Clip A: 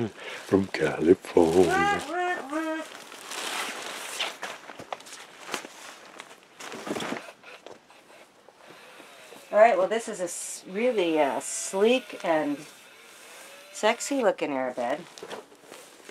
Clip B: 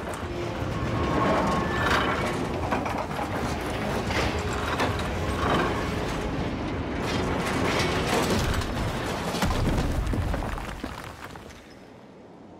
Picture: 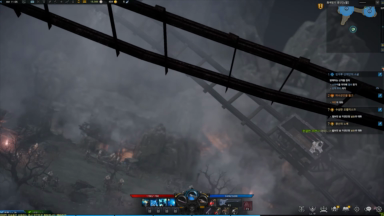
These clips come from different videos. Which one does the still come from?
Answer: B